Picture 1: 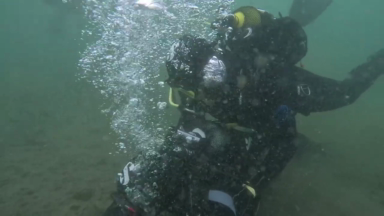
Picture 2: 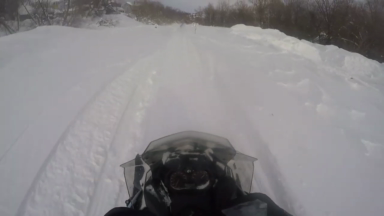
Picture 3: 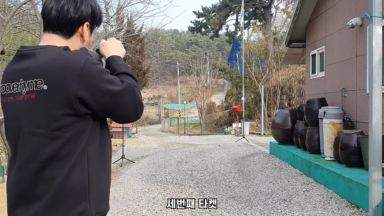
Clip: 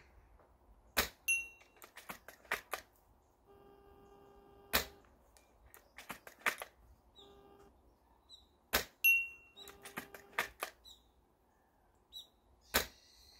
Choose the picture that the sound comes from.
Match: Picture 3